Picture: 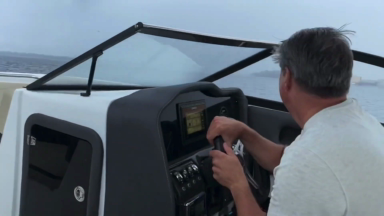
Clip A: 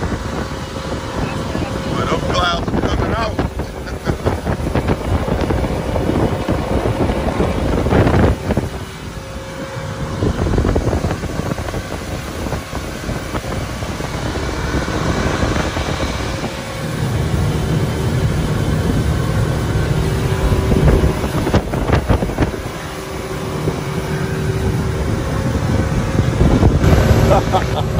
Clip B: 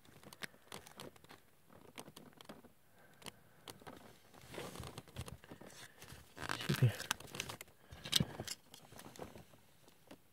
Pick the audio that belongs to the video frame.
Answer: A